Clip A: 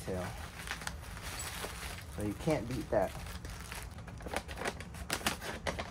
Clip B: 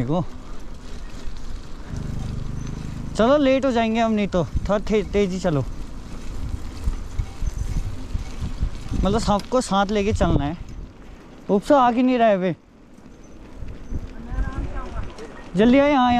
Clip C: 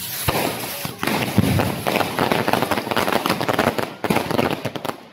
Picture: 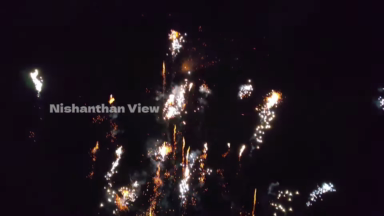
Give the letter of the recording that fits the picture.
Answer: C